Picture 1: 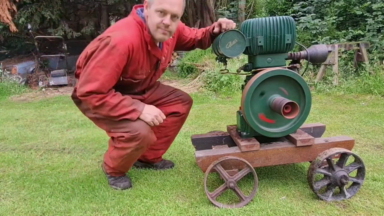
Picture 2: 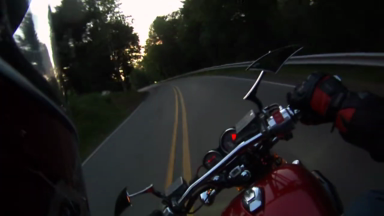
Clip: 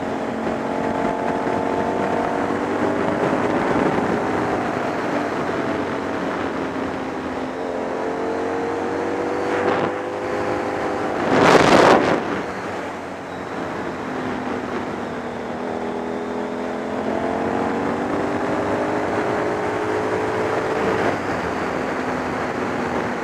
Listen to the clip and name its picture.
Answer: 2